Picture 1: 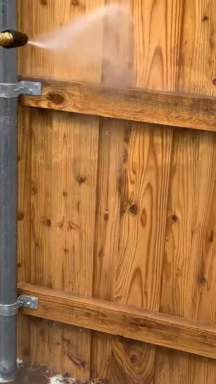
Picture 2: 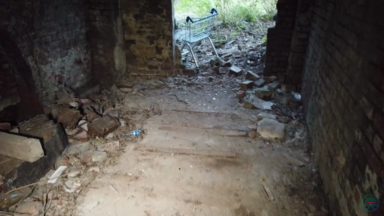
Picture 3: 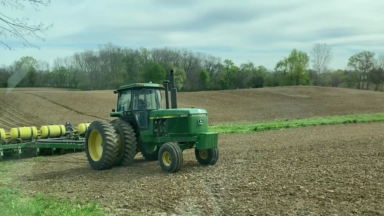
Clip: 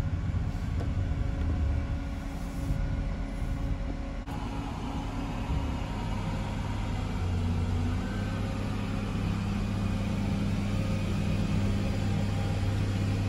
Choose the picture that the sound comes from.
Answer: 3